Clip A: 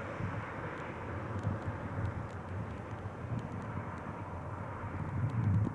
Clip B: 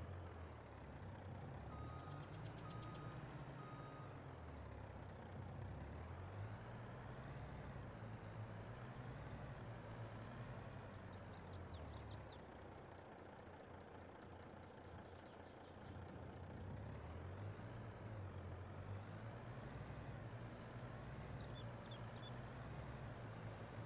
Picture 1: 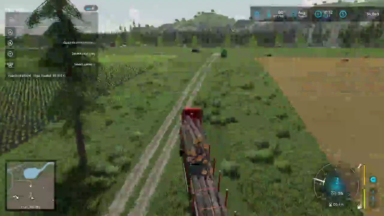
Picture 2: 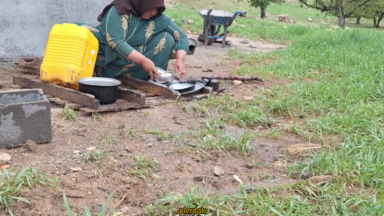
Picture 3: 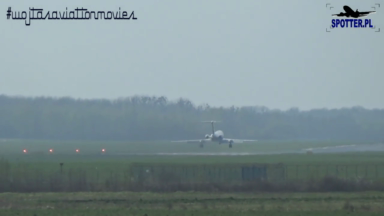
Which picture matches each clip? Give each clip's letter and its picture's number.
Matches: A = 3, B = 1